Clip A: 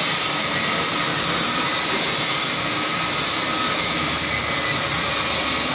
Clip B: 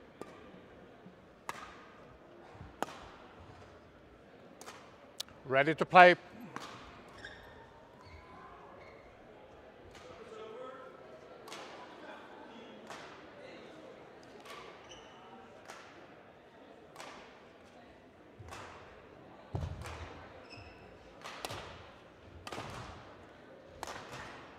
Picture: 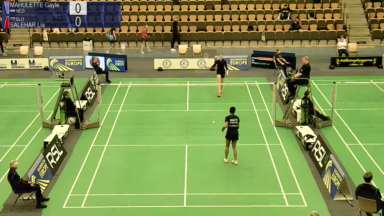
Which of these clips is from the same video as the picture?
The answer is B